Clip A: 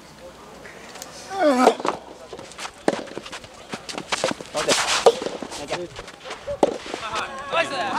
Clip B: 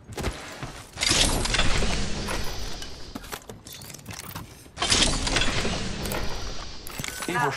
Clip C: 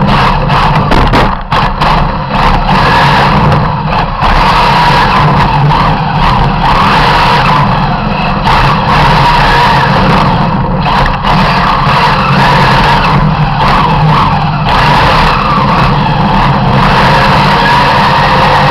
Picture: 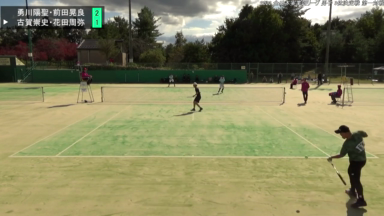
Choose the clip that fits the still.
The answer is A